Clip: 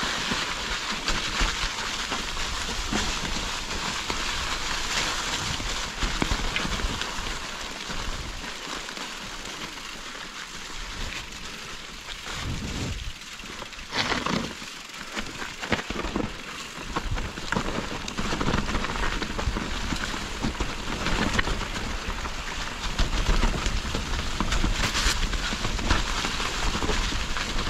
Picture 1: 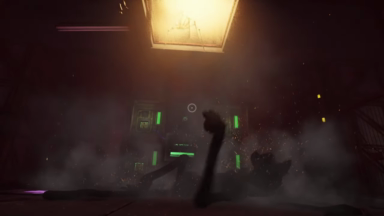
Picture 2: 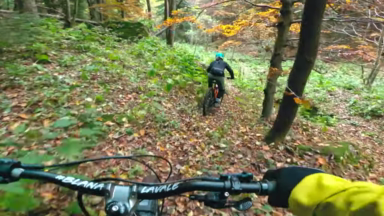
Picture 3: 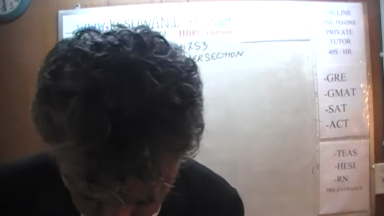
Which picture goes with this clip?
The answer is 2